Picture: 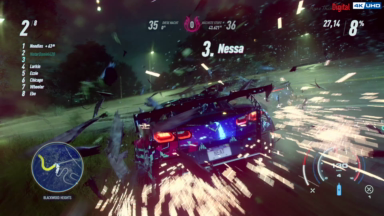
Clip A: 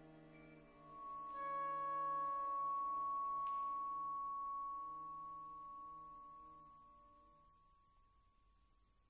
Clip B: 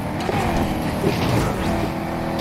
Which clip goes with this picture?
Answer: B